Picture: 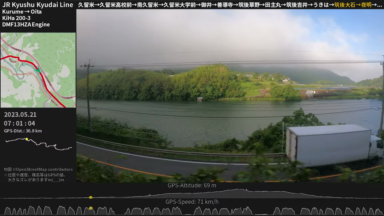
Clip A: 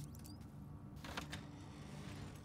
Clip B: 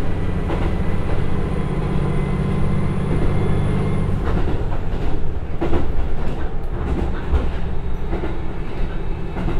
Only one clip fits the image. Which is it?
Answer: B